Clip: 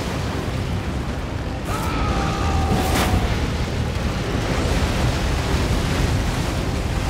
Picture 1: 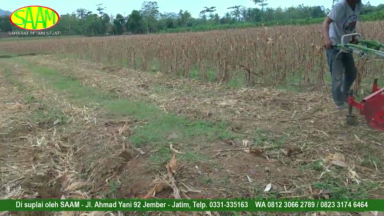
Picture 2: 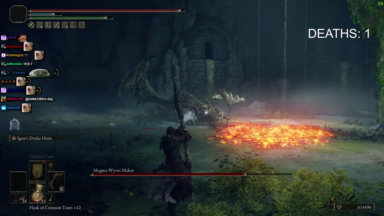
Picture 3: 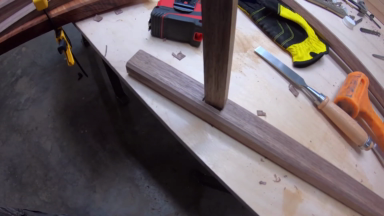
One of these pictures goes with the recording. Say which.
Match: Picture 2